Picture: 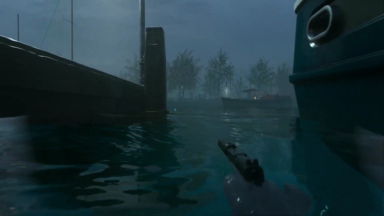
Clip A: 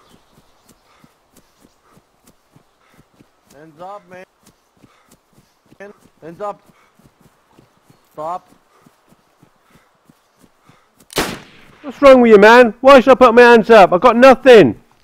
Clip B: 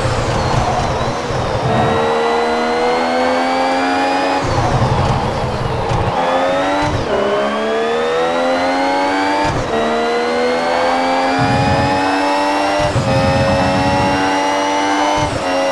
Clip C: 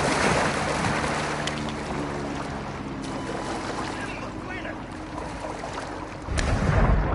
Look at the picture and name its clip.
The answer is C